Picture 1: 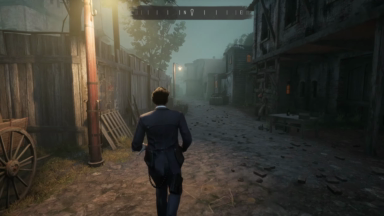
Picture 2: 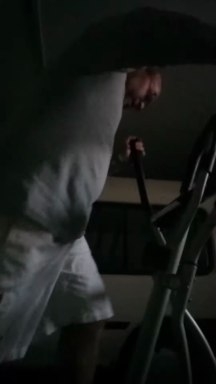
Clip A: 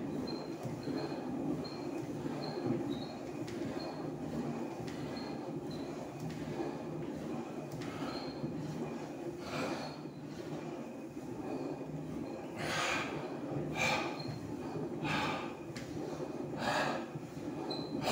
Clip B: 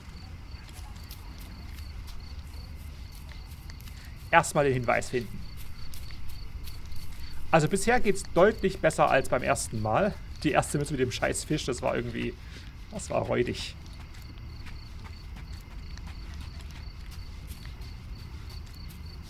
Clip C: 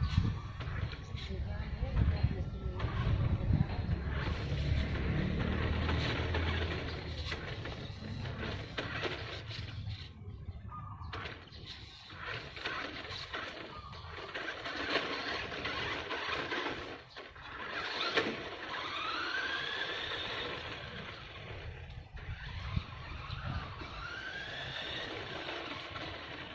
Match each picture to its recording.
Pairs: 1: B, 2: A